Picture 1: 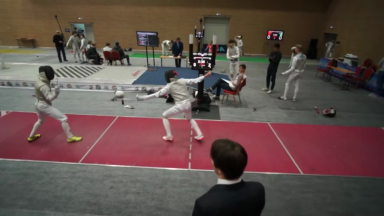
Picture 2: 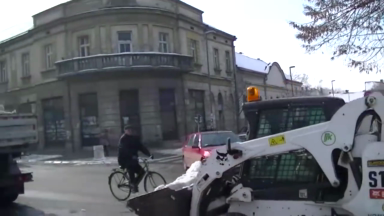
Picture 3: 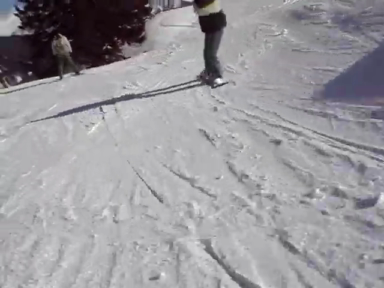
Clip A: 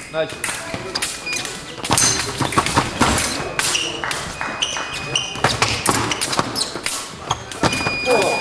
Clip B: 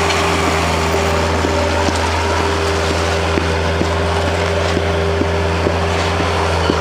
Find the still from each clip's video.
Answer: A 1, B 2